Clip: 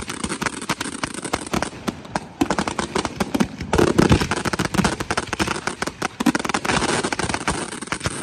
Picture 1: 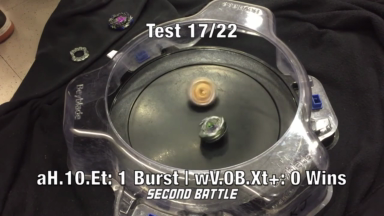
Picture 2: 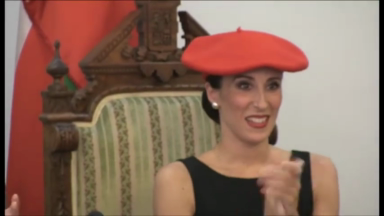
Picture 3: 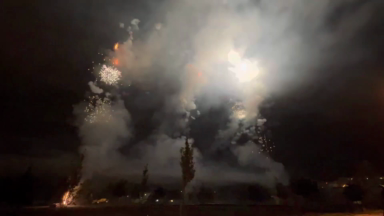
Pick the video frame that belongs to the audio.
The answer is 3